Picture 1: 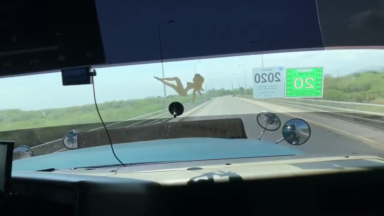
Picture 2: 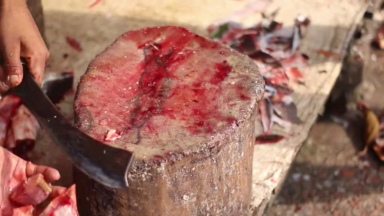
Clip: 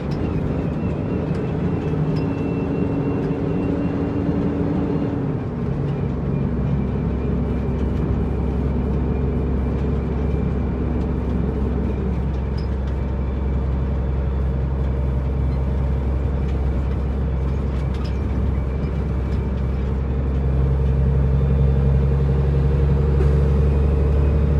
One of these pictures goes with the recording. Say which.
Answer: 1